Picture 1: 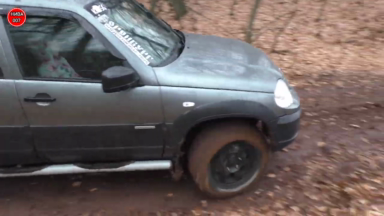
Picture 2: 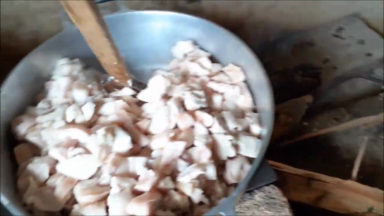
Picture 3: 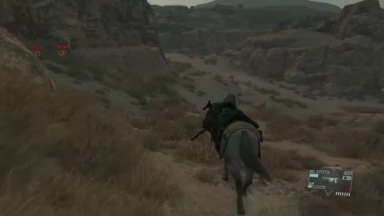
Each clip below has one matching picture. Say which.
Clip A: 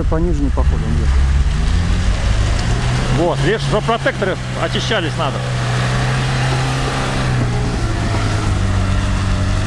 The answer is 1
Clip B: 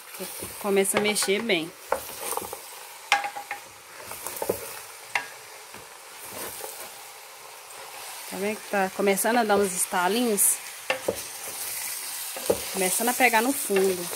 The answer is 2